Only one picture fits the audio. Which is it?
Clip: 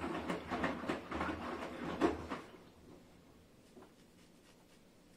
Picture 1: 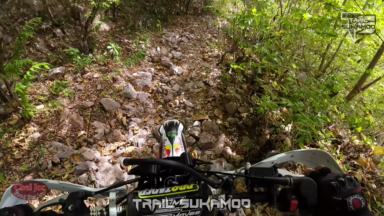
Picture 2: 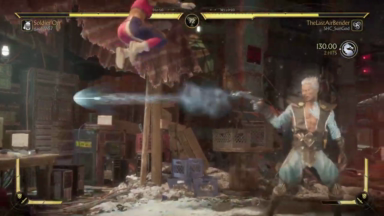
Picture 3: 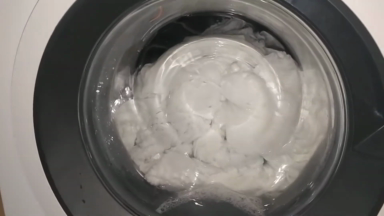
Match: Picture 3